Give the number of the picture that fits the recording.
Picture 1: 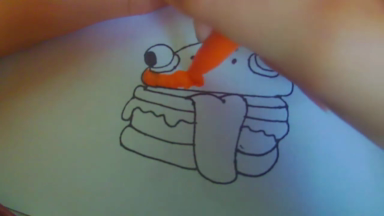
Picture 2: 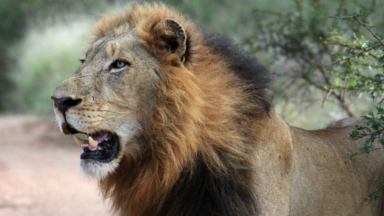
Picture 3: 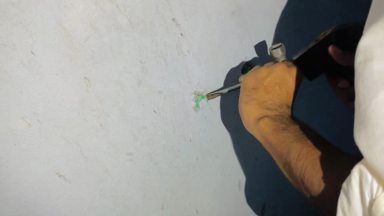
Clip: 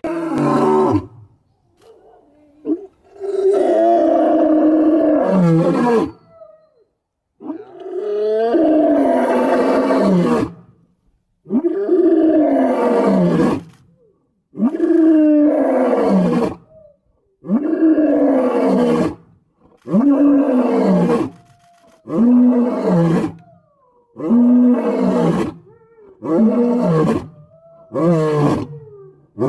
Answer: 2